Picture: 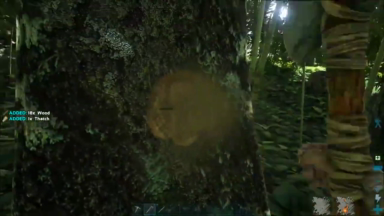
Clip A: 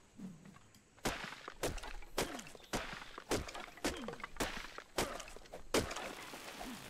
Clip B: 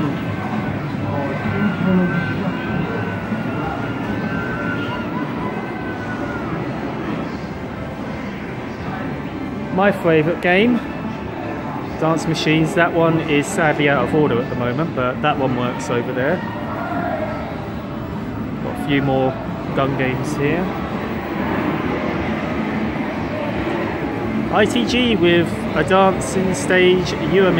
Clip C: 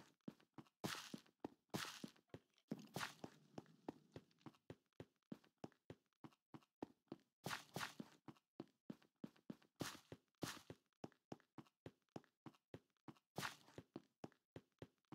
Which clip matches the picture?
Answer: A